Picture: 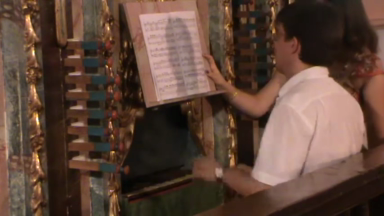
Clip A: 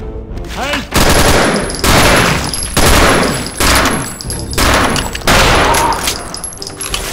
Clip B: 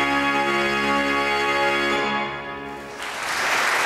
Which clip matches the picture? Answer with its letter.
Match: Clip B